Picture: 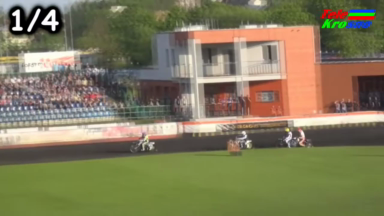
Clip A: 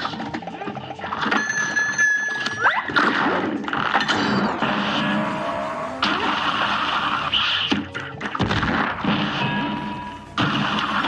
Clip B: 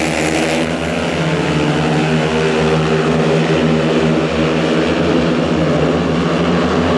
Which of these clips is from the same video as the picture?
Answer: B